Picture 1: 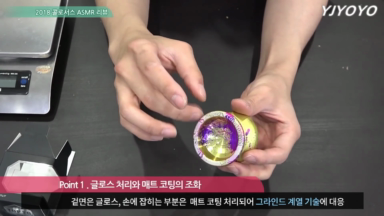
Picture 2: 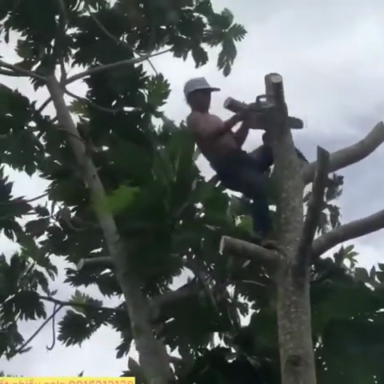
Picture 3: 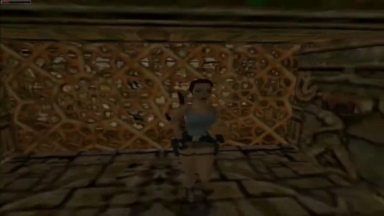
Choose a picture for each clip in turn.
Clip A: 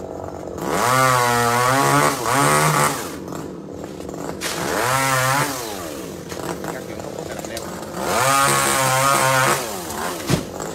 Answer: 2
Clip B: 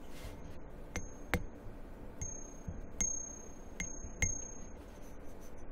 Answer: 1